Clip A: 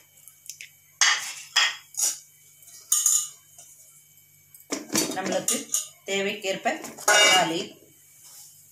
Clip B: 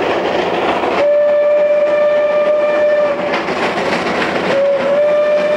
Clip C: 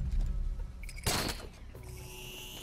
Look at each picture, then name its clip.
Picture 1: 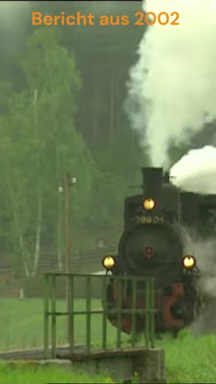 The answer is B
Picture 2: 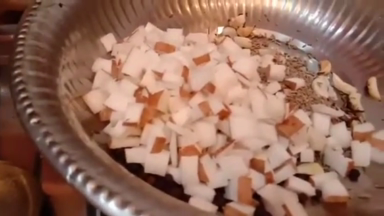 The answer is A